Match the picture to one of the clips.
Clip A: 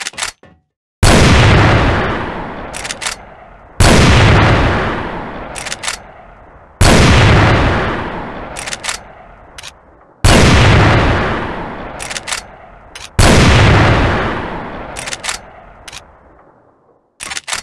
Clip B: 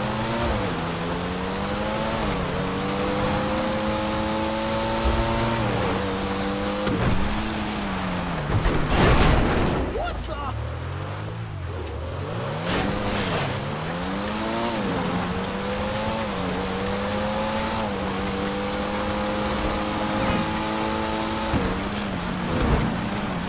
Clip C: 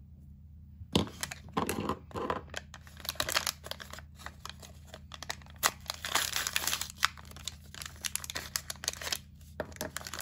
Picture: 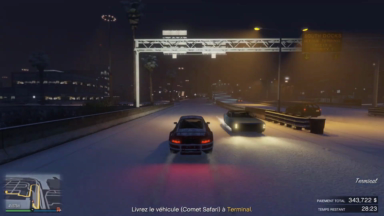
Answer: B